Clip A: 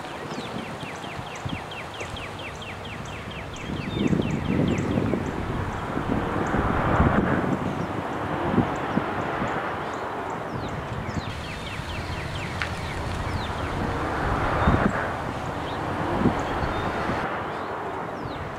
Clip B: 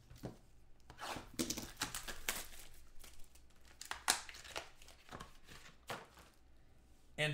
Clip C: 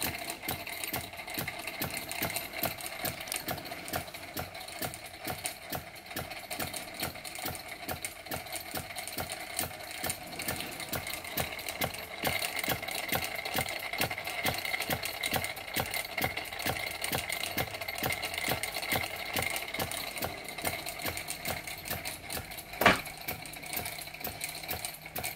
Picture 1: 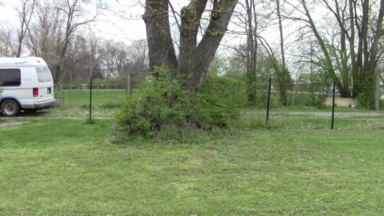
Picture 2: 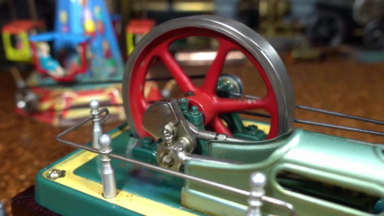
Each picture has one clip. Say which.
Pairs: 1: A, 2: C